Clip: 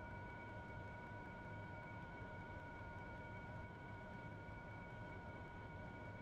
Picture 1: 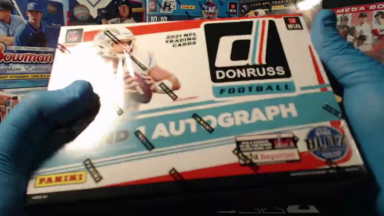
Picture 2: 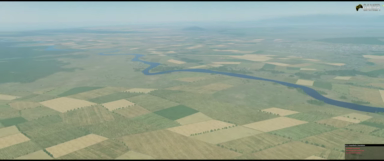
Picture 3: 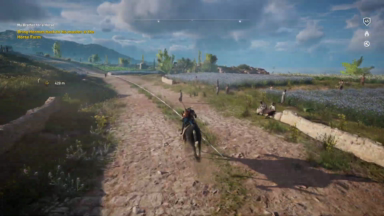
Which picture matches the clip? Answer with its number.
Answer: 2